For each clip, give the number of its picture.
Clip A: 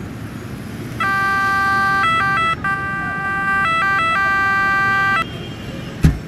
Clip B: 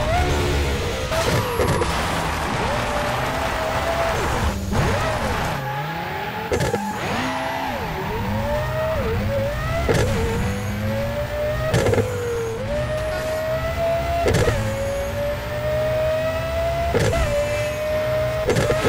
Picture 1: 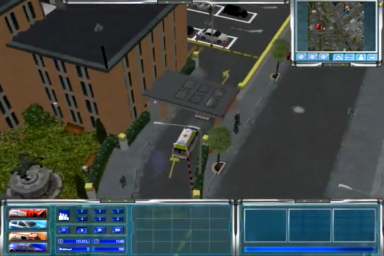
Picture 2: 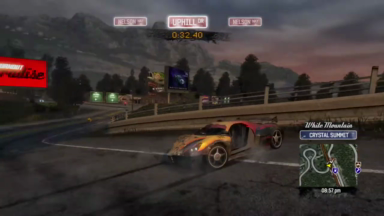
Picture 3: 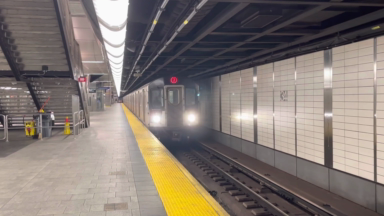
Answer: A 1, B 2